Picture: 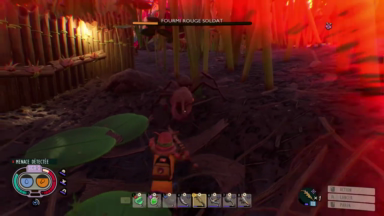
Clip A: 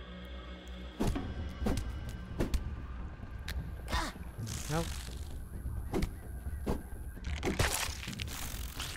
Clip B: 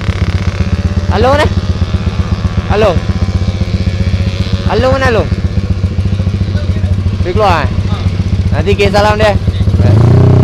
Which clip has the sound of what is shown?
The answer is A